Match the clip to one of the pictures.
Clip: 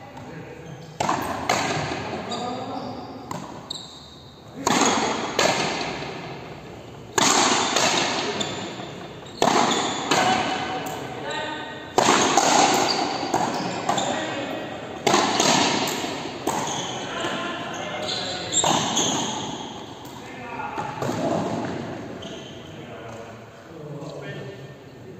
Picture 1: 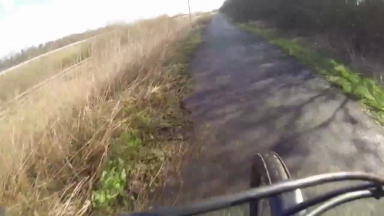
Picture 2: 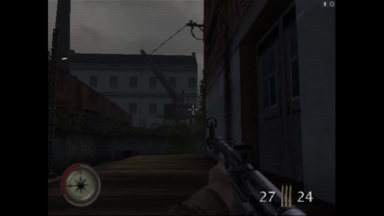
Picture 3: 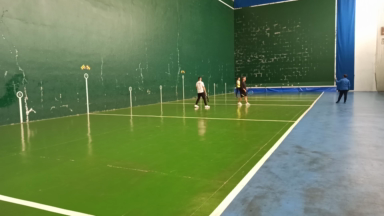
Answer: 3